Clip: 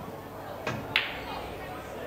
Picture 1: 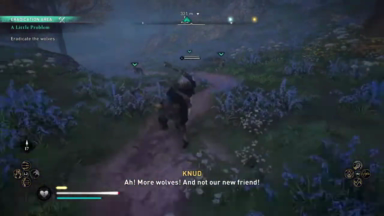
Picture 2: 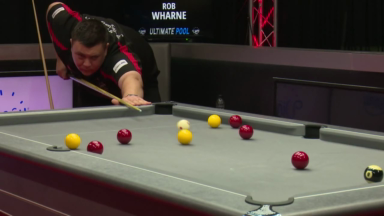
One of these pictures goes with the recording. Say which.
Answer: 2